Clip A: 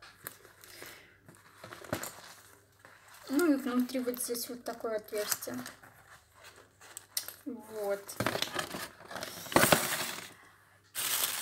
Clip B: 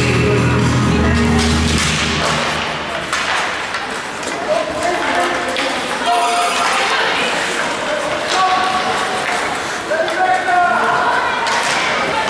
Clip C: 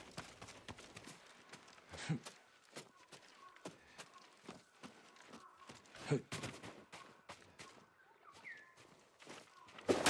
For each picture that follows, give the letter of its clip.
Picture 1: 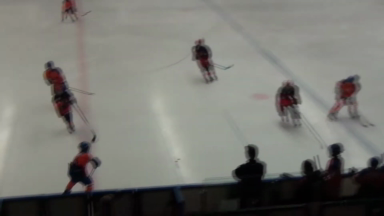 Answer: B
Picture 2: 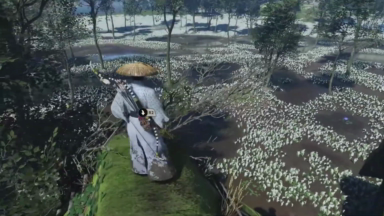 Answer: C